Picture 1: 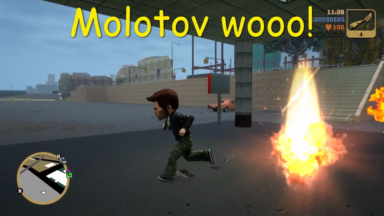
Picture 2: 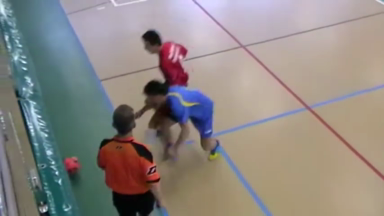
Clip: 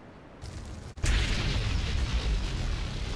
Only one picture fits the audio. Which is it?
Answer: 1